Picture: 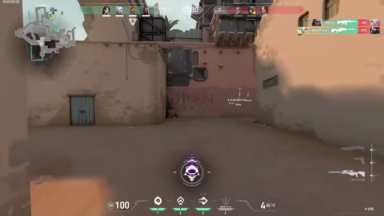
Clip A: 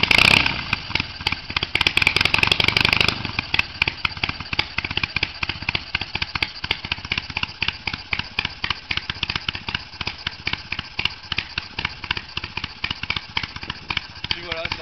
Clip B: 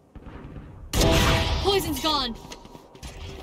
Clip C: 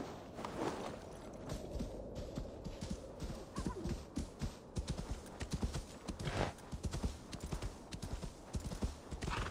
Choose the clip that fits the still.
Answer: B